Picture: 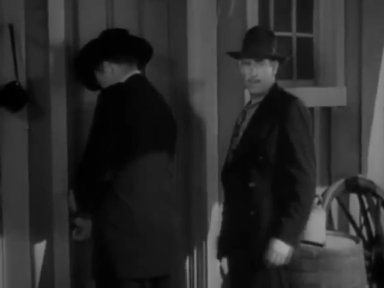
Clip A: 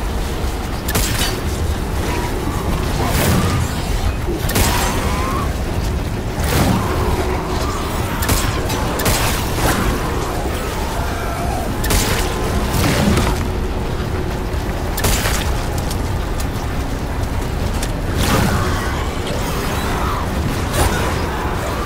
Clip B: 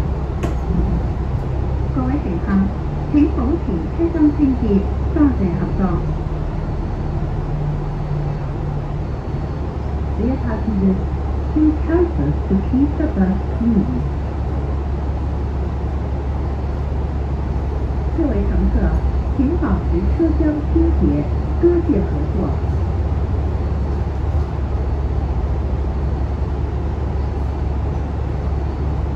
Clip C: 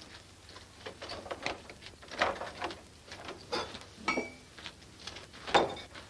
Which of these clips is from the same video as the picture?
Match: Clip C